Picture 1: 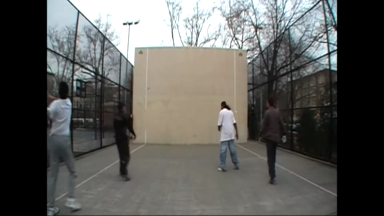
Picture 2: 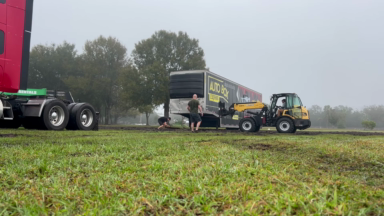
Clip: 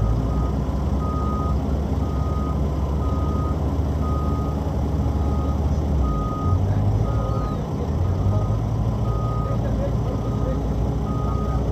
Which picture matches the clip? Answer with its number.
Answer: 2